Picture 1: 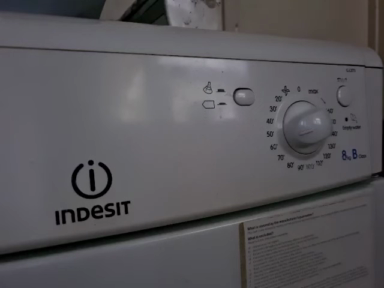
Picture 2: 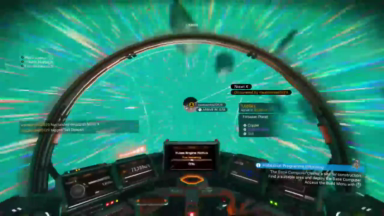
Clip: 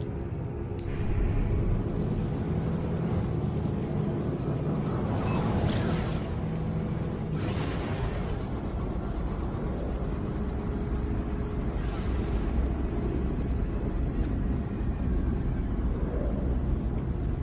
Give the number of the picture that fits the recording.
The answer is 2